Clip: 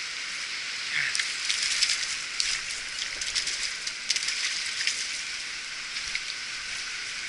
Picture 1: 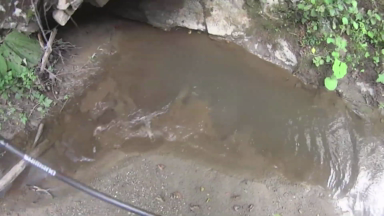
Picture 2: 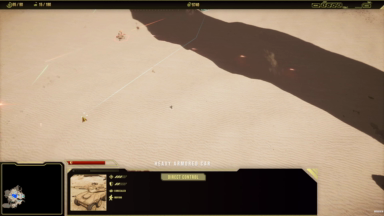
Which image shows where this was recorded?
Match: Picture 1